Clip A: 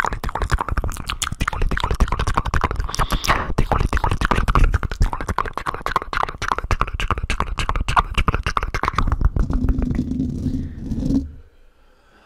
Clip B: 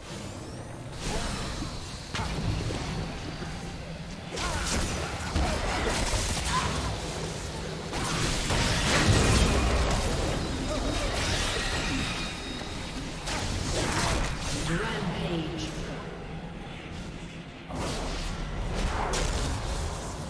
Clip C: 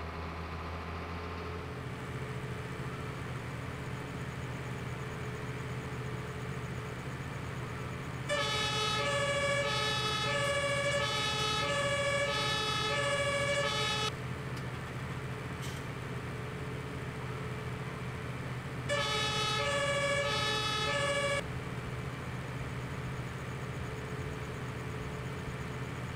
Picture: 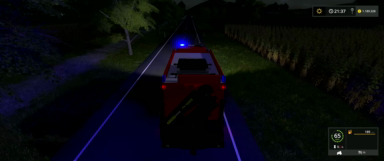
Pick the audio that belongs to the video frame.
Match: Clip C